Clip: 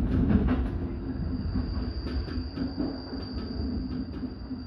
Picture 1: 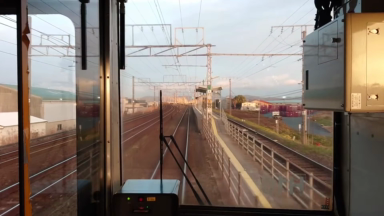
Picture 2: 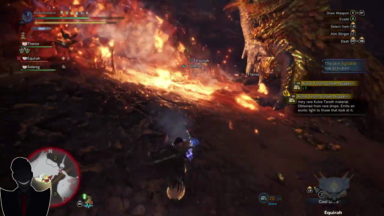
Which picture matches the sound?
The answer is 1